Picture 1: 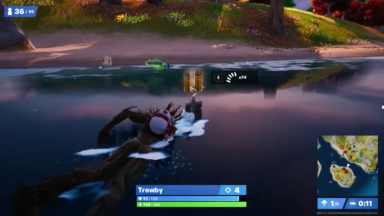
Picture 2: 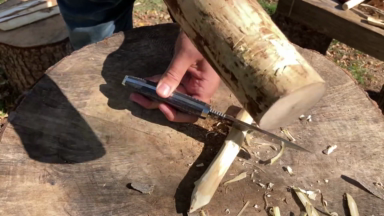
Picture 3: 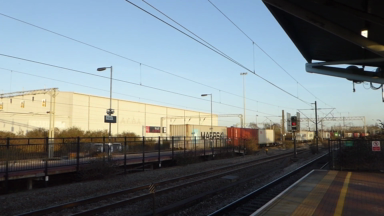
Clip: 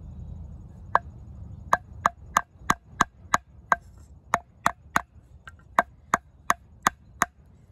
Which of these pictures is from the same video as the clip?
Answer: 2